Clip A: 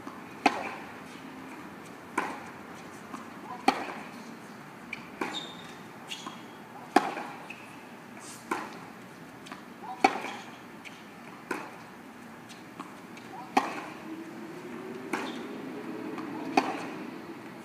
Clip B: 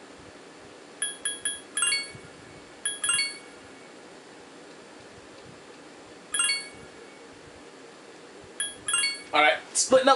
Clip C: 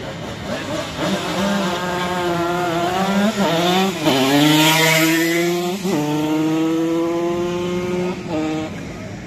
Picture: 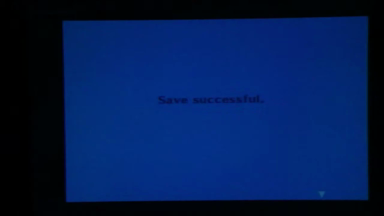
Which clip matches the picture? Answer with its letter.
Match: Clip B